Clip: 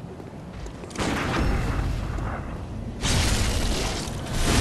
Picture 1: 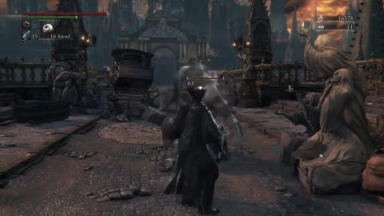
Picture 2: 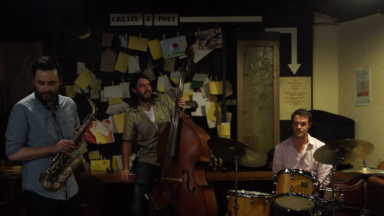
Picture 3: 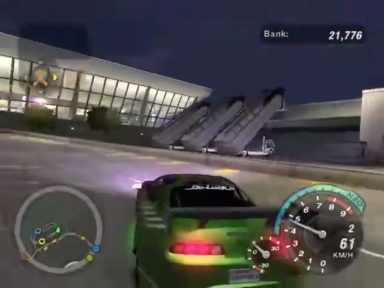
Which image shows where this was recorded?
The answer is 1